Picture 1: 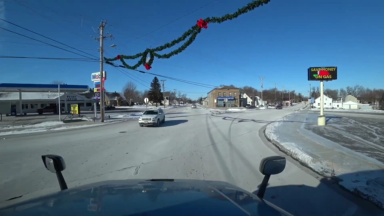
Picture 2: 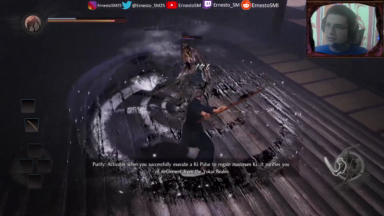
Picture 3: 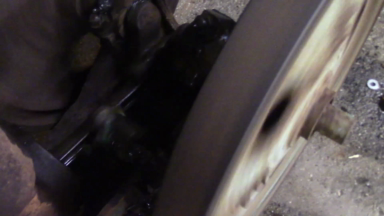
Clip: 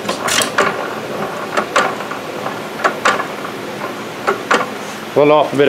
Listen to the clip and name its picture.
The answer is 3